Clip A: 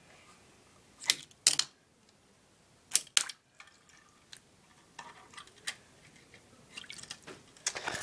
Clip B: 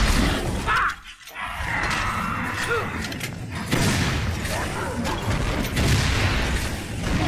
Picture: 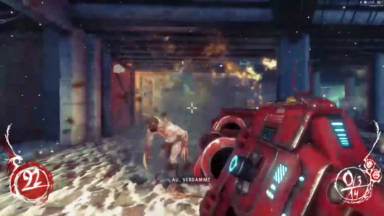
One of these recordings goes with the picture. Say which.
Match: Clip B